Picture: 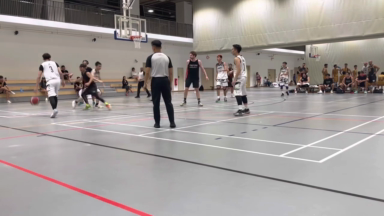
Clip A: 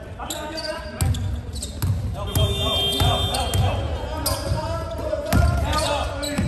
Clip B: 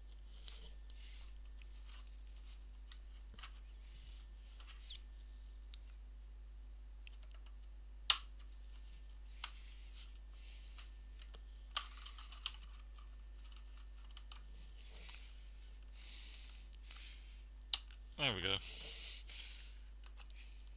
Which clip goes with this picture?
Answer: A